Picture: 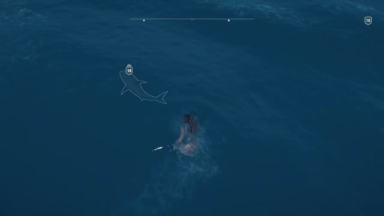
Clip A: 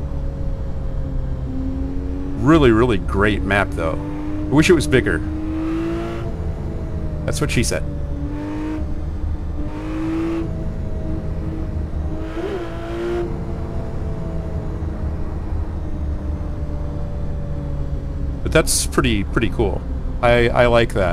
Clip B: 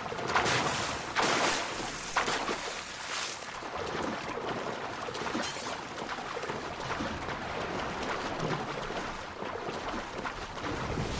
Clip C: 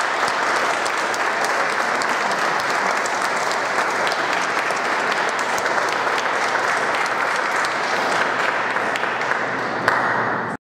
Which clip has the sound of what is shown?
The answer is B